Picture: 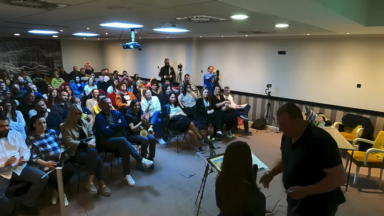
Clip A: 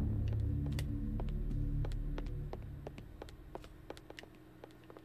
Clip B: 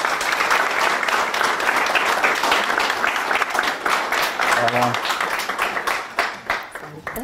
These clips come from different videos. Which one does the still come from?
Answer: B